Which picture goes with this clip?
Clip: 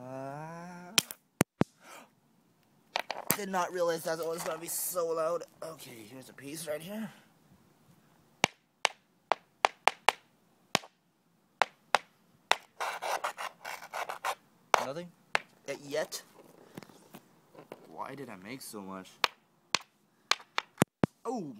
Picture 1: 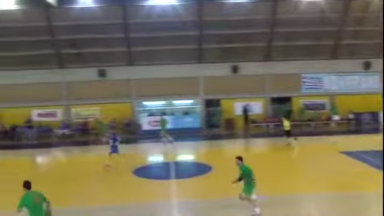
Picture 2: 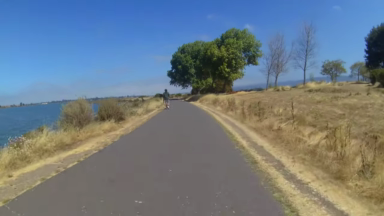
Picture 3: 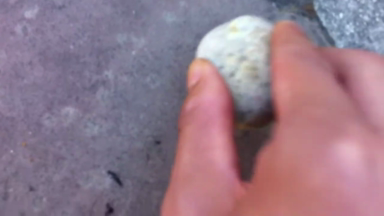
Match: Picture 3